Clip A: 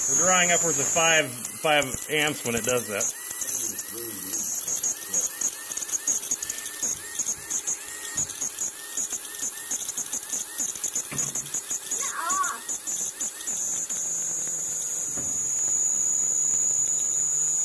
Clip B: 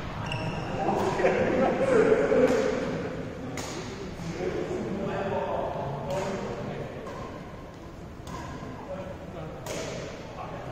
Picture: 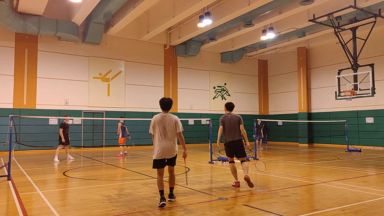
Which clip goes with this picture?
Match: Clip B